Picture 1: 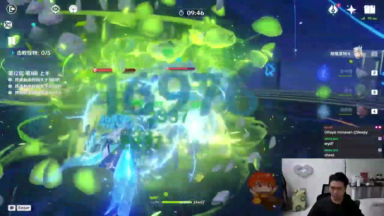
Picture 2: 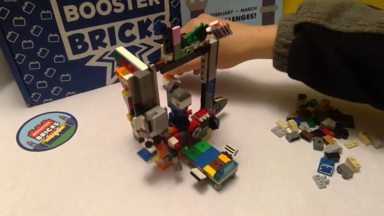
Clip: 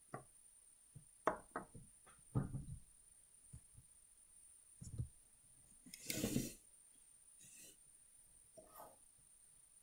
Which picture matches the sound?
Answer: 2